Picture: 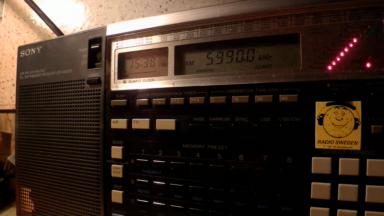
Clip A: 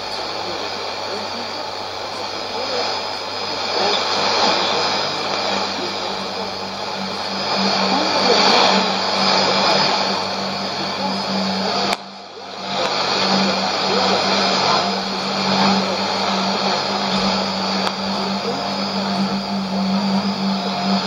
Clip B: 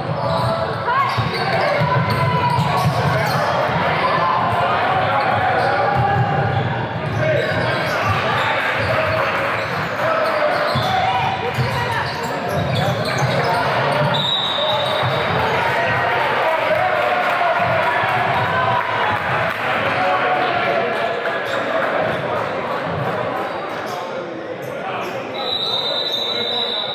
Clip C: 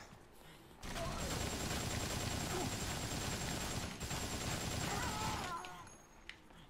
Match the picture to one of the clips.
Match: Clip A